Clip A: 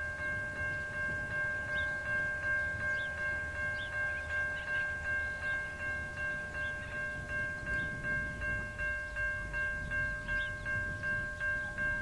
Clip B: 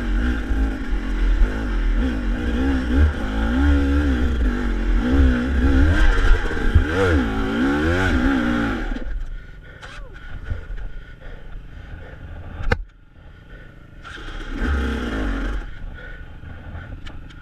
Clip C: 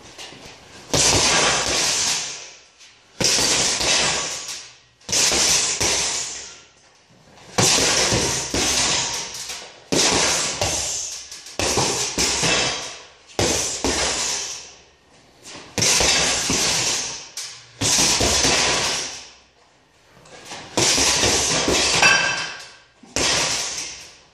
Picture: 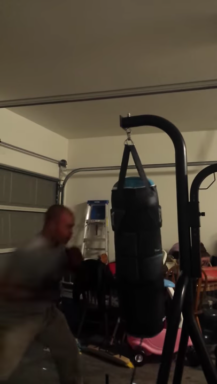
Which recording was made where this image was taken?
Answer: C